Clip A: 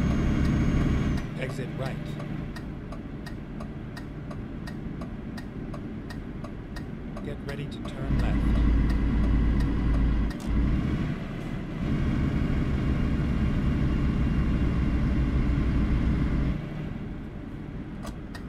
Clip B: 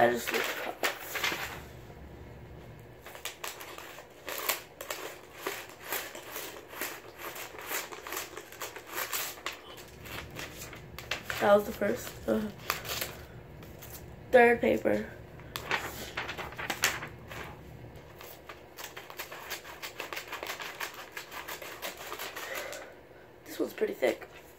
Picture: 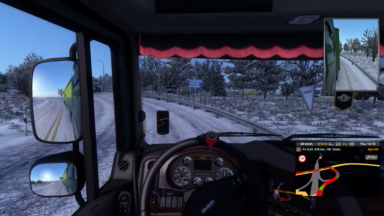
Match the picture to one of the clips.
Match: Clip A